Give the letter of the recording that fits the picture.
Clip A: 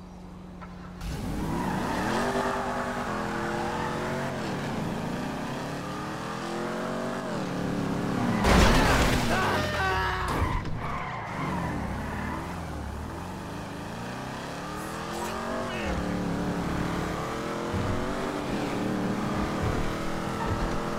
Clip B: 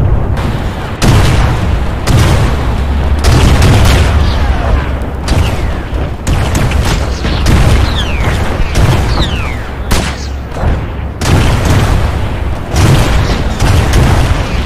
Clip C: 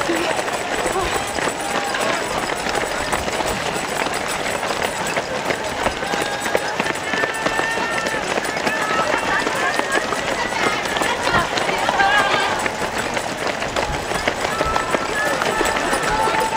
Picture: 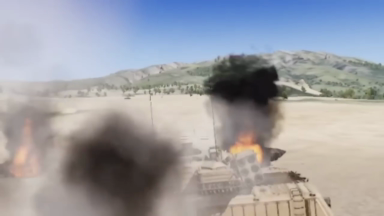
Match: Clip B